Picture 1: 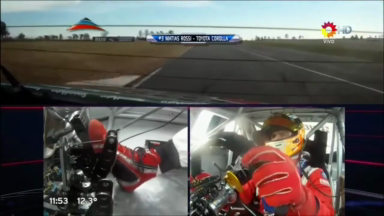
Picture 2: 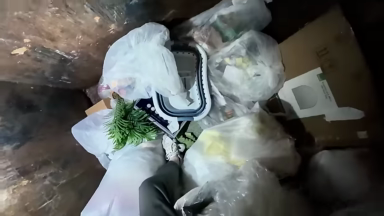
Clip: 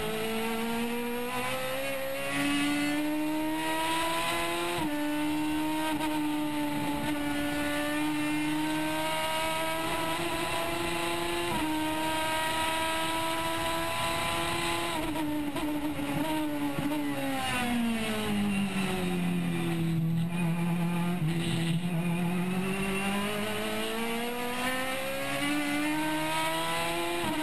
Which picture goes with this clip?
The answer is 1